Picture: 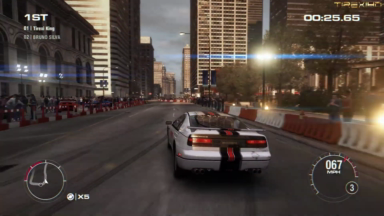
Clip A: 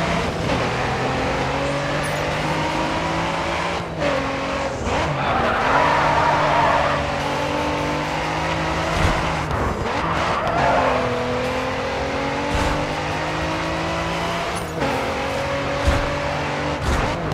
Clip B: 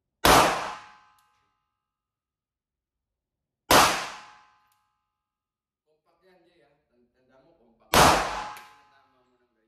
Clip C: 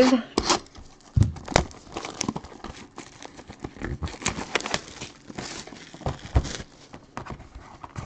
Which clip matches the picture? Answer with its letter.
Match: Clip A